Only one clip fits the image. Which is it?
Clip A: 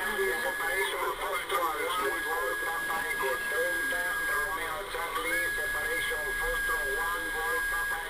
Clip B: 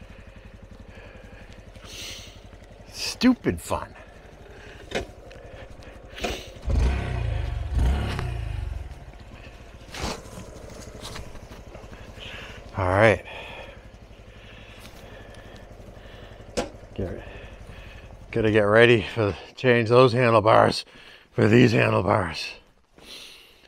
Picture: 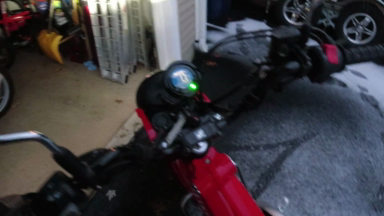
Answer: B